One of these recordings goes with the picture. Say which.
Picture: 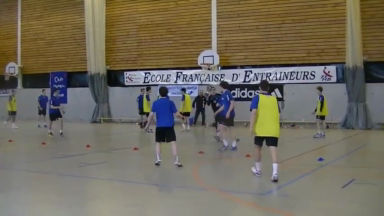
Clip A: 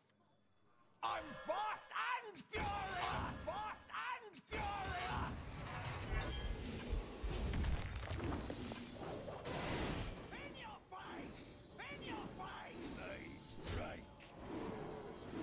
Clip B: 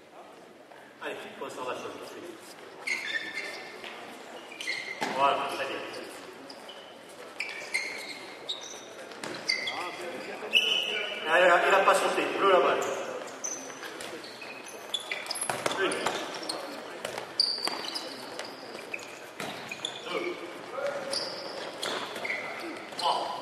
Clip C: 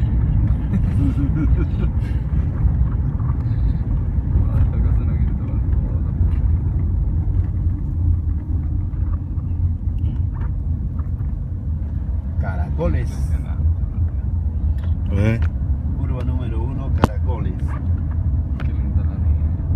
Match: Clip B